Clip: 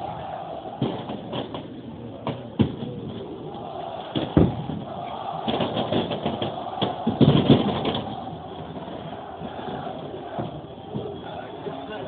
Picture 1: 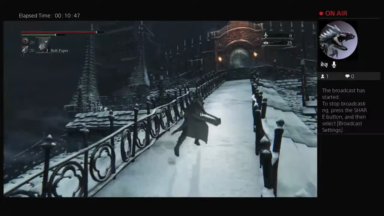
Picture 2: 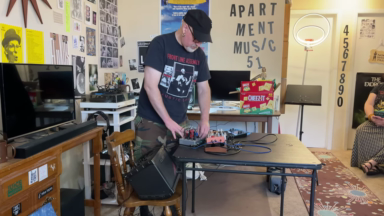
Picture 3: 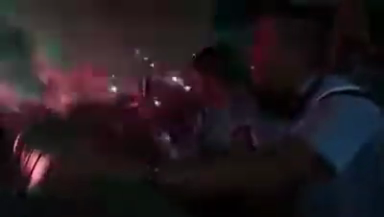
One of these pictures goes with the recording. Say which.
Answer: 3